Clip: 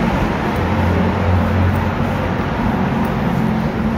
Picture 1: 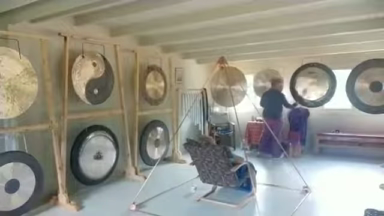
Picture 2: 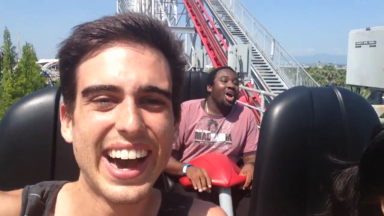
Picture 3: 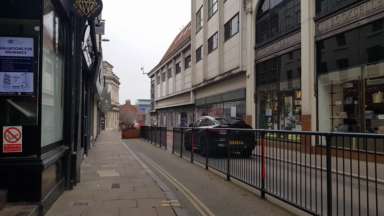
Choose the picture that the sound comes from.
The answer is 3